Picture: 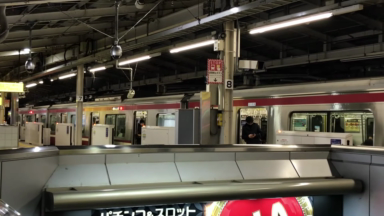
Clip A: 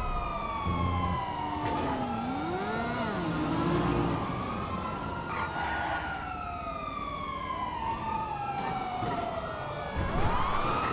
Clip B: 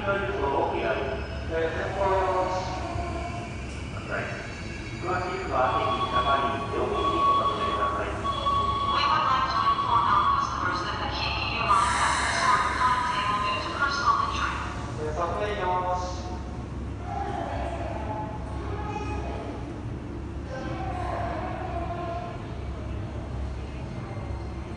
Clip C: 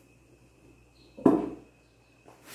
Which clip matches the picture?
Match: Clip B